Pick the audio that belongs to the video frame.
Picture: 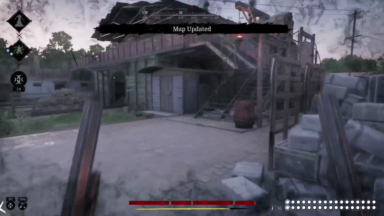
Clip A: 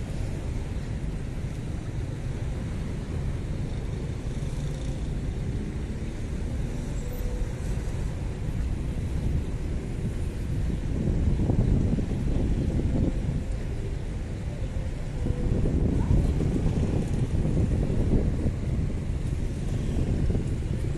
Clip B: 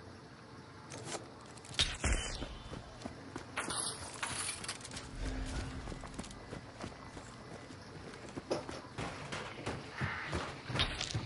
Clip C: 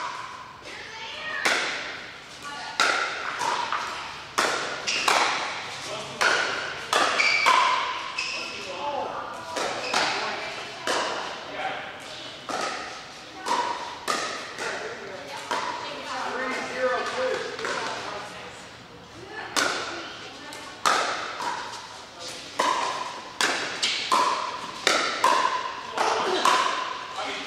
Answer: B